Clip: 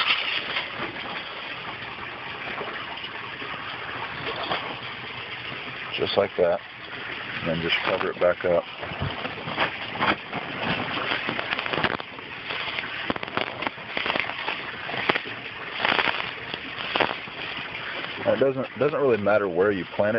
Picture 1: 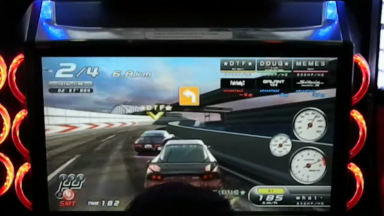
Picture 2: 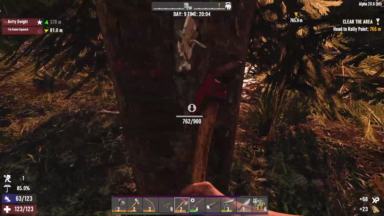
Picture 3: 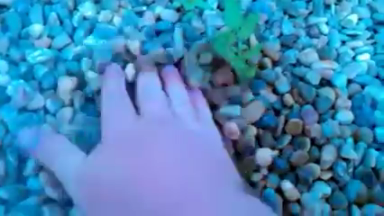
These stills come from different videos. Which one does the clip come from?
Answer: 3